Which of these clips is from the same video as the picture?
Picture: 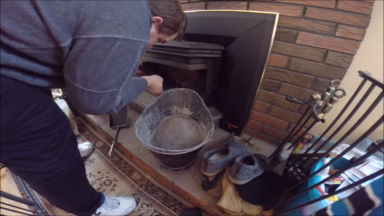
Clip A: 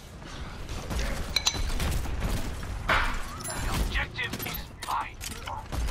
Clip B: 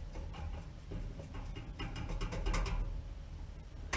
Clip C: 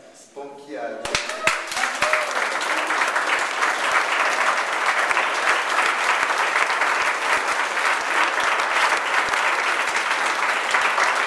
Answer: B